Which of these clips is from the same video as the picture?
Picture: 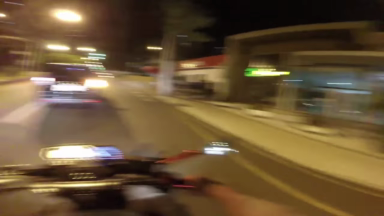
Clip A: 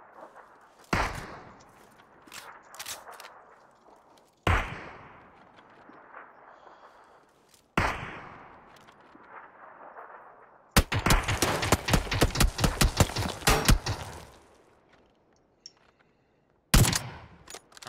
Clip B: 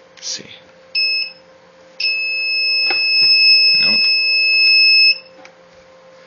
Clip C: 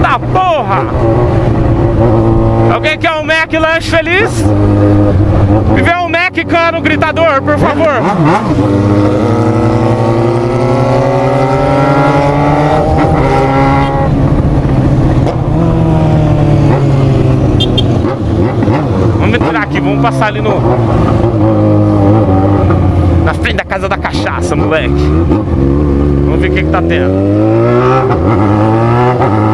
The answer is C